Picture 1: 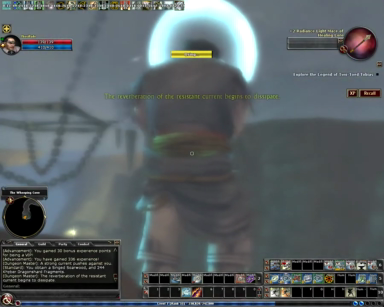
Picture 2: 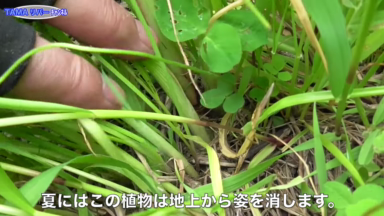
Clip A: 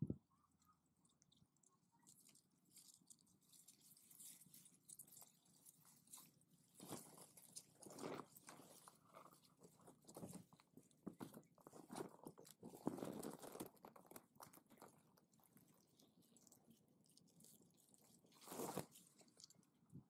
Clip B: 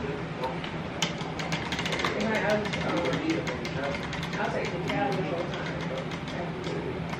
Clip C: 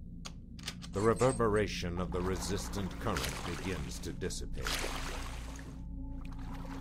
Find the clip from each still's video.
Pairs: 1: C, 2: A